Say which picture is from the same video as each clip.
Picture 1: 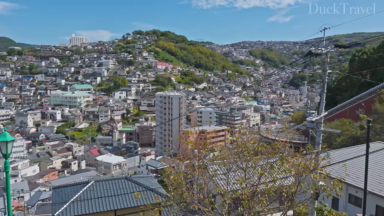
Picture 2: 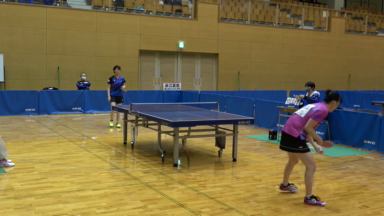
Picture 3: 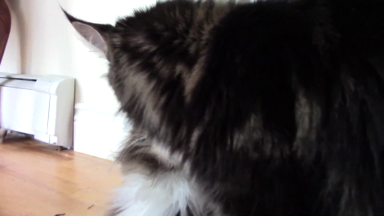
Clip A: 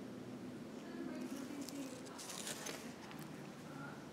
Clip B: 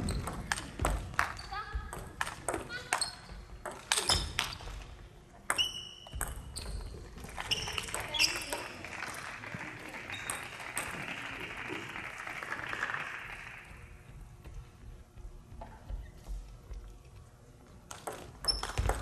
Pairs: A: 3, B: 2